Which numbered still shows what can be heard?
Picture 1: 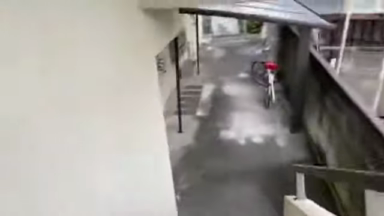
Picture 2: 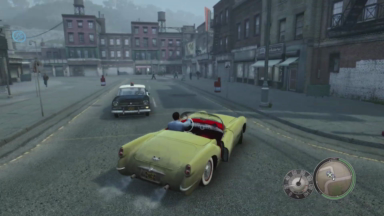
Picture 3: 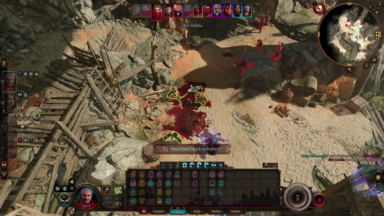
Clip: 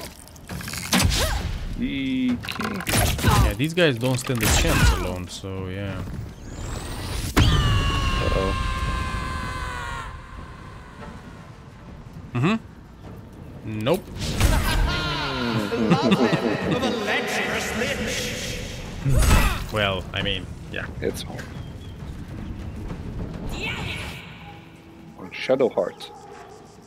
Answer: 3